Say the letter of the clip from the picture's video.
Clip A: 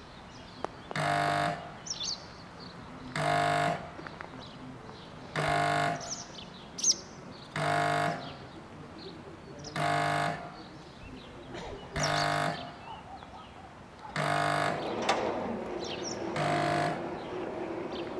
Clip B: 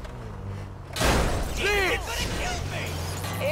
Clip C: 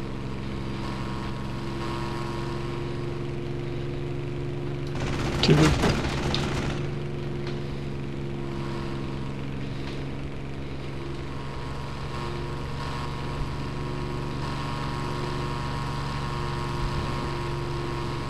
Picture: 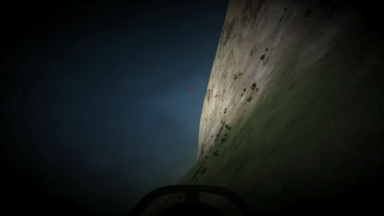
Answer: C